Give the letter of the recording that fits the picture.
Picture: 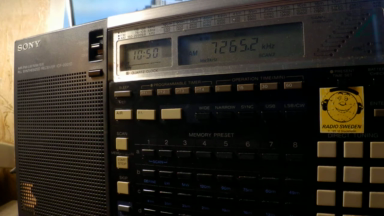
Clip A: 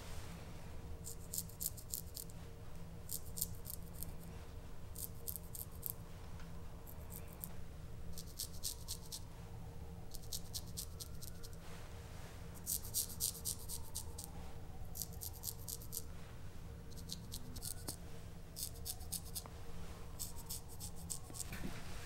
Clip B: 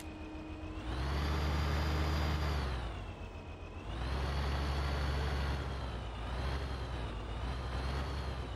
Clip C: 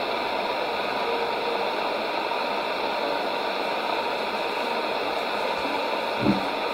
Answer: C